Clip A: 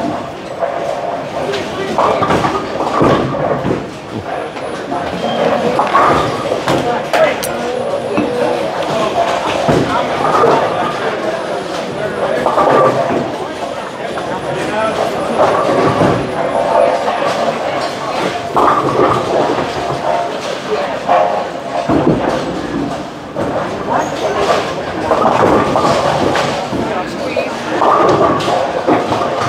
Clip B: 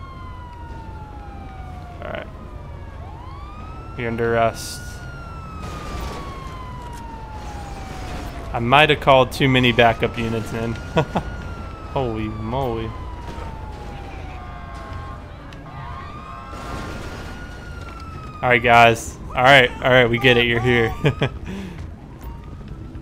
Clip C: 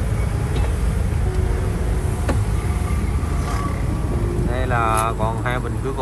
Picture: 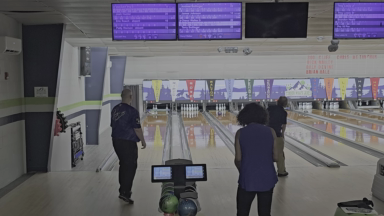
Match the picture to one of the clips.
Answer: A